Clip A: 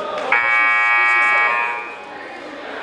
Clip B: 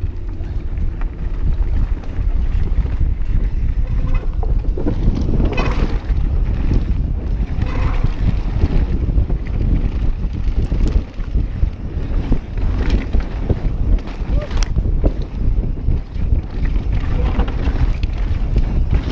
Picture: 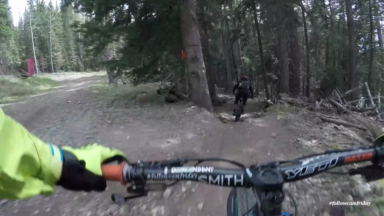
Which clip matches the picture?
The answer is B